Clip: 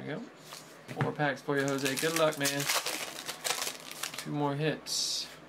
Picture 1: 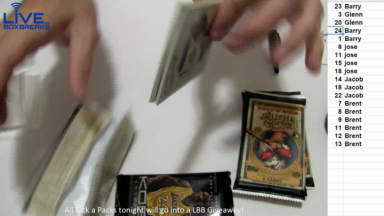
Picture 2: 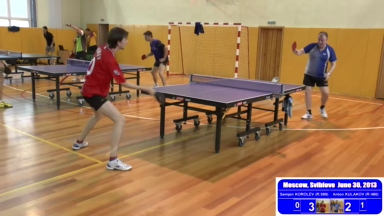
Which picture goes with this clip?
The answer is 1